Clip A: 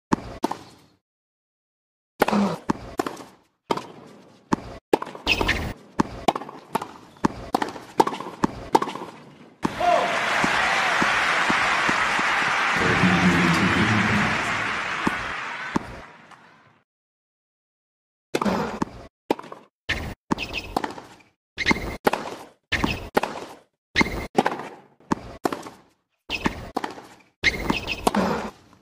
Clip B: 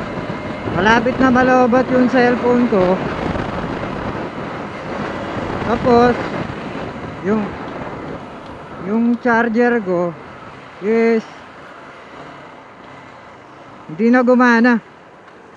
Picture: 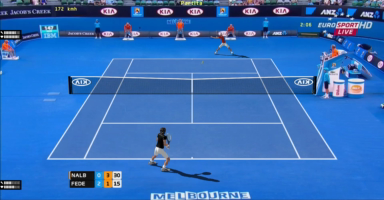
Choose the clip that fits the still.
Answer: A